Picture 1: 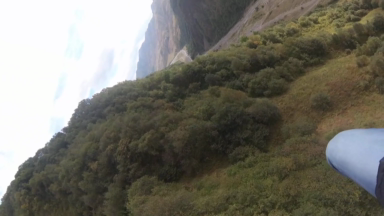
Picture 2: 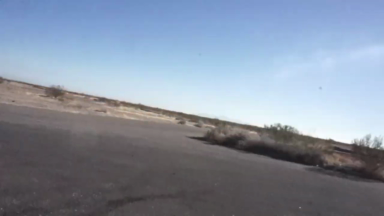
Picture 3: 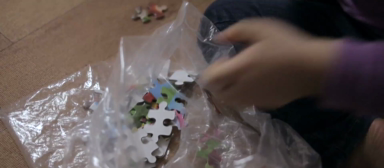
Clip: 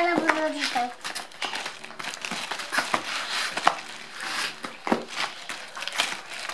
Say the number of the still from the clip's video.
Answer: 3